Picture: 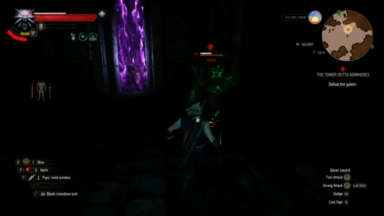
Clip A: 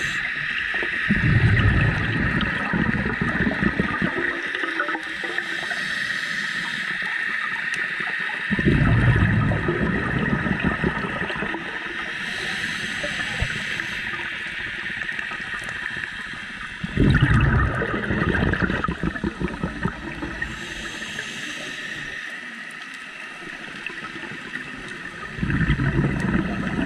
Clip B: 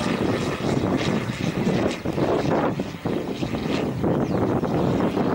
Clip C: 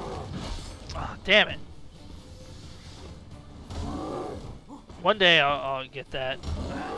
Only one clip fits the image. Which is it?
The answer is C